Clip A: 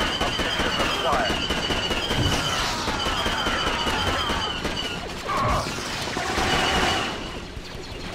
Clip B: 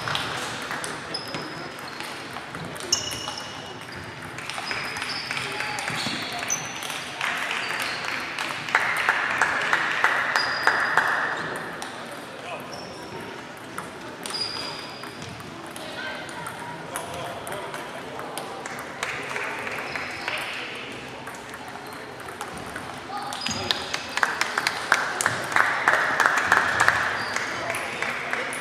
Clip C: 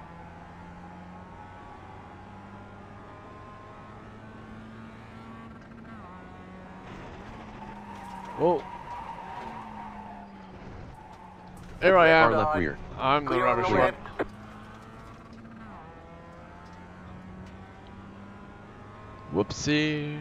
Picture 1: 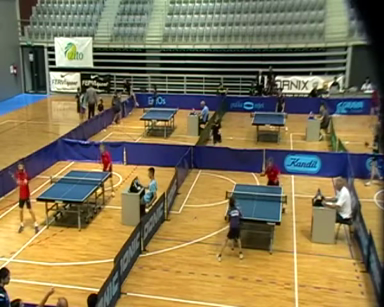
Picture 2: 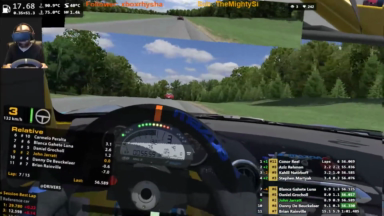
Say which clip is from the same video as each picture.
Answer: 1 B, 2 C